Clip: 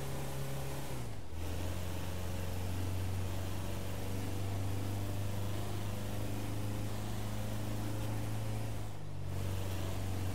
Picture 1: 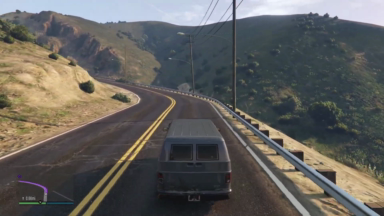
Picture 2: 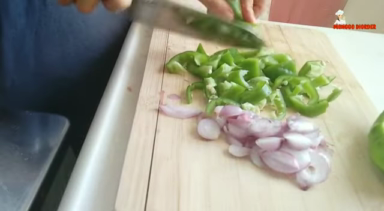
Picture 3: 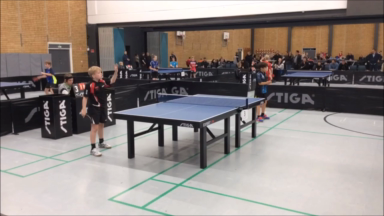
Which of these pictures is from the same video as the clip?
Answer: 1